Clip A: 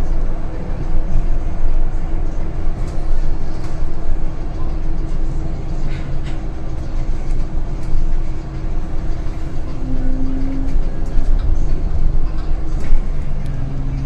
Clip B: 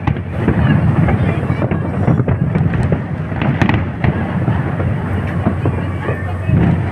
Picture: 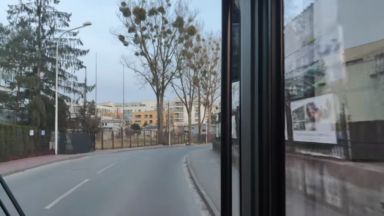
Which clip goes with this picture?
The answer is A